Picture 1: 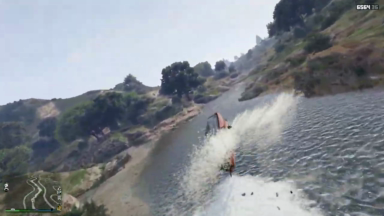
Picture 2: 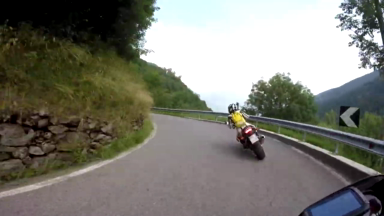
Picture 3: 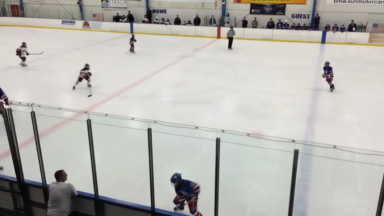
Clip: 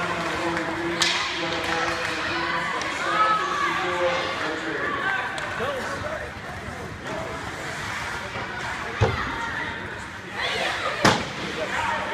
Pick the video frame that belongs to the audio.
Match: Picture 3